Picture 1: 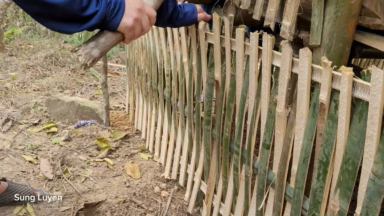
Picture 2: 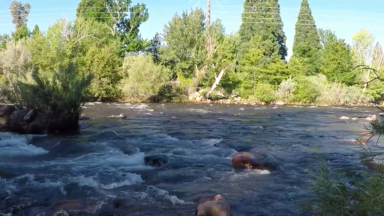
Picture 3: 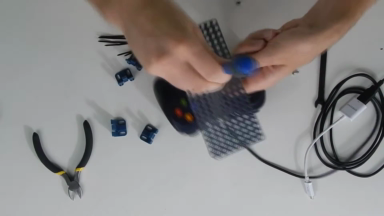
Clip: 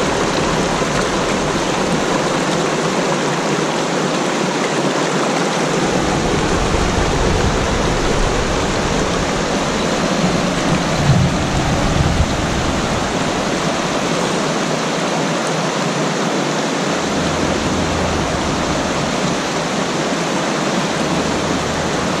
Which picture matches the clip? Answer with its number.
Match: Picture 2